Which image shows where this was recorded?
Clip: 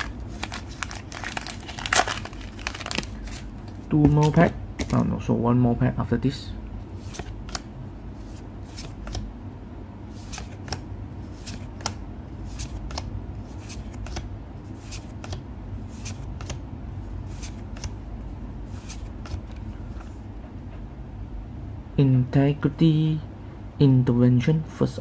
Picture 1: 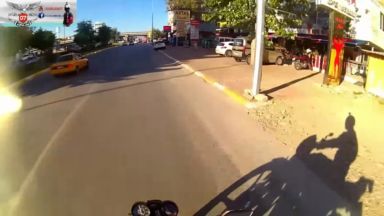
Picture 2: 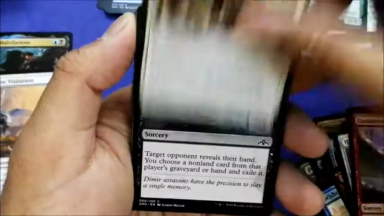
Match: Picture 2